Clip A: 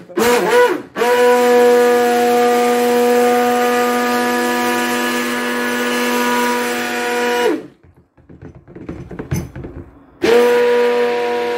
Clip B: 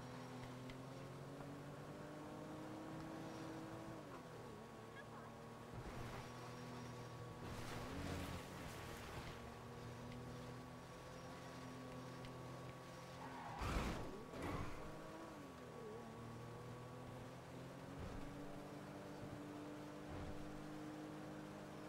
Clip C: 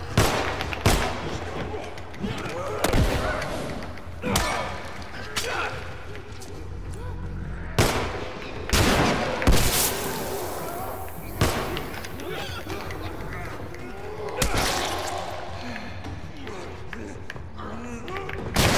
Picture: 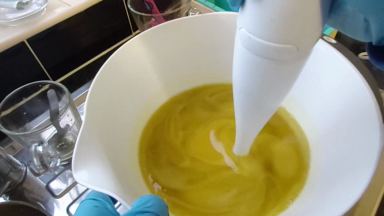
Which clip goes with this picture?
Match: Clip A